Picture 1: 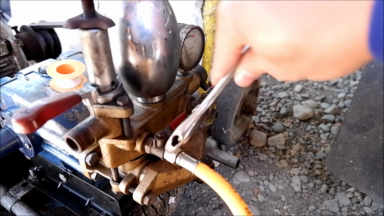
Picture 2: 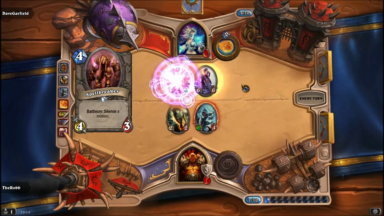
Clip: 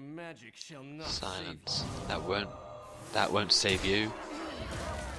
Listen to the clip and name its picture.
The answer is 2